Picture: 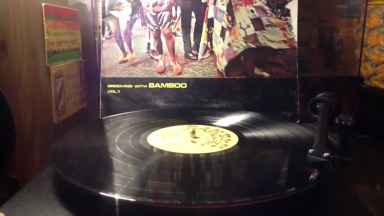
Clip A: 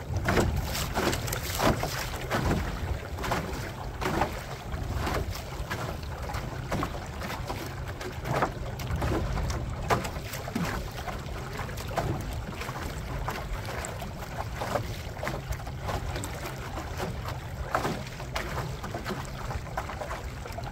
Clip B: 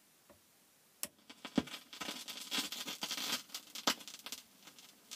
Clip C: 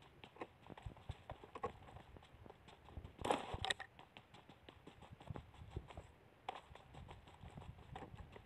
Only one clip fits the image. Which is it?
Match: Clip B